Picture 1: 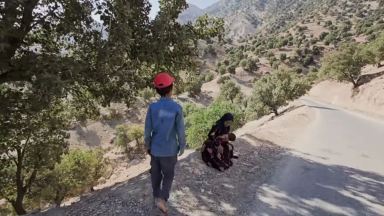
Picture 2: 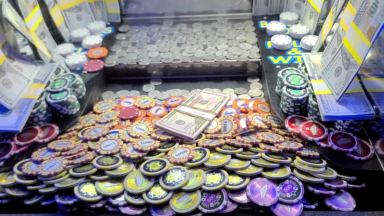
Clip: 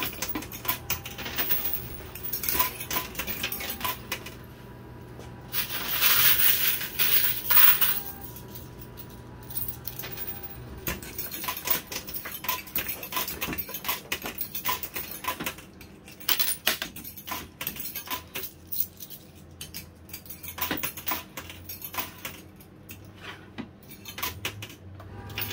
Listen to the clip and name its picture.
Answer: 2